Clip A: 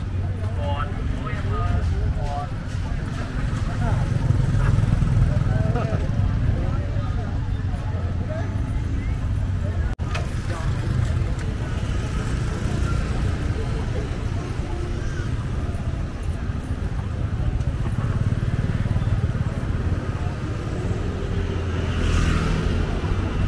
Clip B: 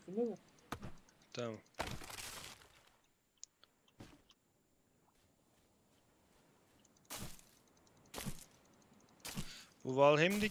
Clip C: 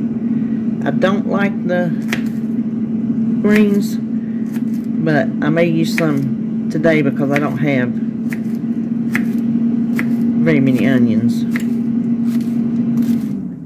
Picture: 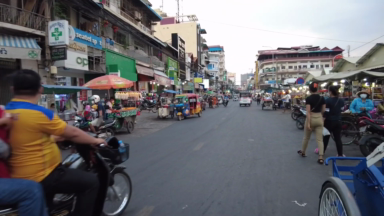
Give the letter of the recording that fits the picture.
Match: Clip A